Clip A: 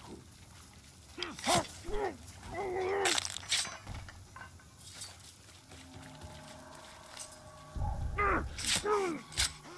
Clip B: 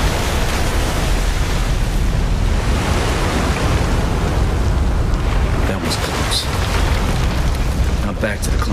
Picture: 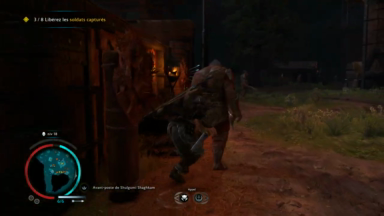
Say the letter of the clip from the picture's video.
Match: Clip A